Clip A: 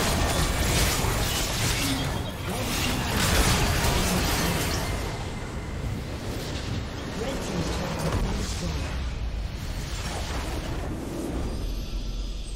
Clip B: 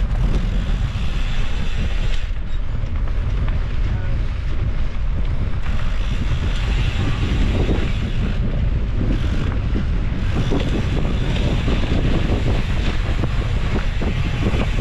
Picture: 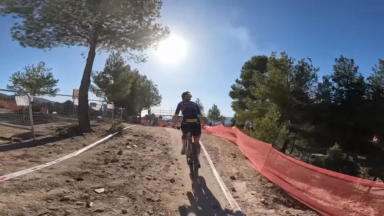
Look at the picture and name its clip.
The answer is B